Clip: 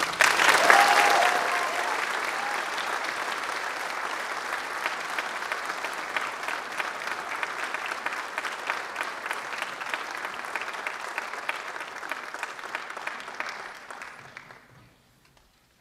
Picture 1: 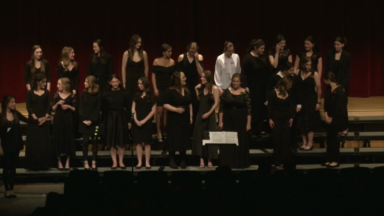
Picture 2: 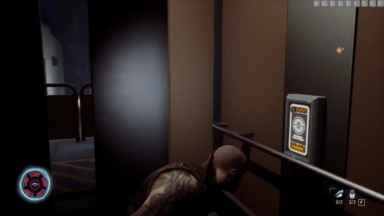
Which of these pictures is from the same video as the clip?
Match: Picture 1